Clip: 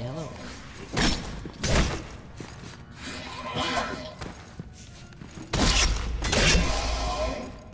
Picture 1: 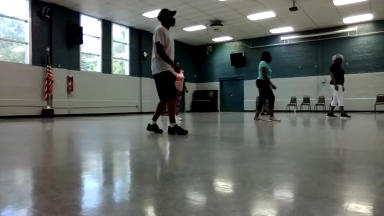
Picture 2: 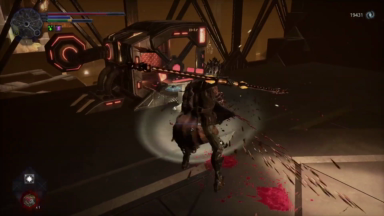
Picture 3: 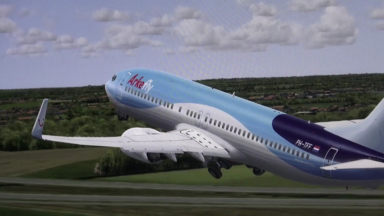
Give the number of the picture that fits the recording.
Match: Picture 2